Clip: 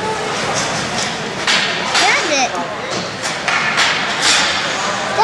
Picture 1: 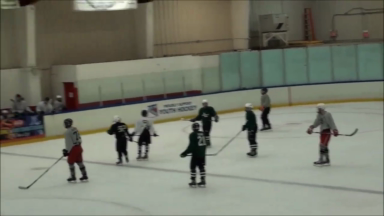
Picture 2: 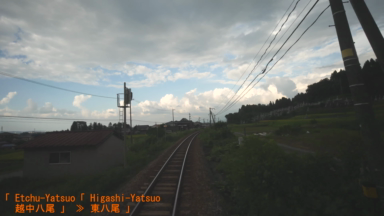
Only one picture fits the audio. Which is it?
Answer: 1